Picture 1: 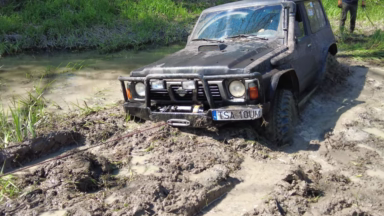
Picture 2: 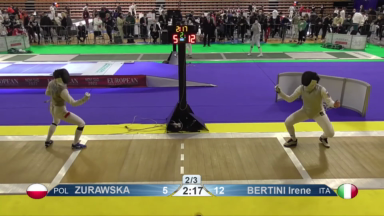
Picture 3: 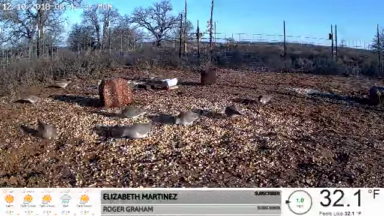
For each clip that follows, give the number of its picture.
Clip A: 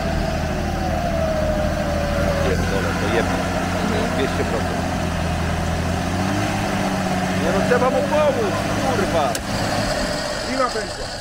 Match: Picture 1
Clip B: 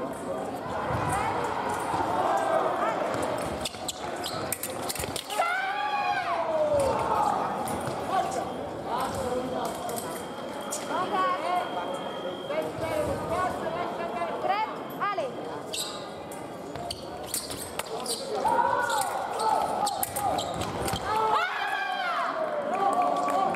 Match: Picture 2